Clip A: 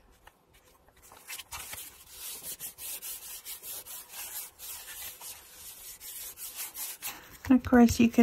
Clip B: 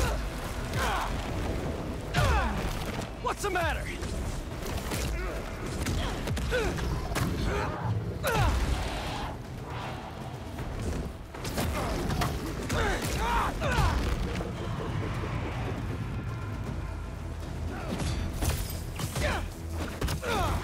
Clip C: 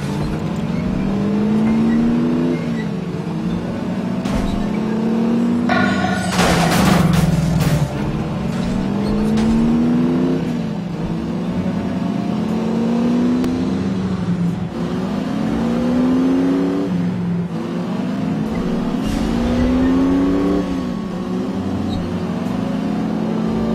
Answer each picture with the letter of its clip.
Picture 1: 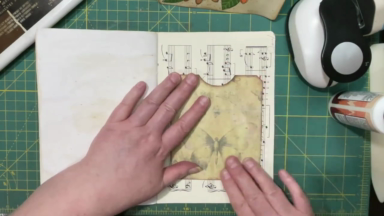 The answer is A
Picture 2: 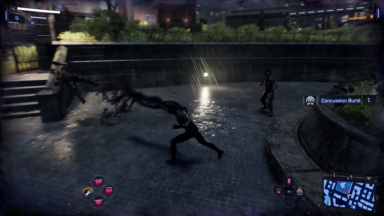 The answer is B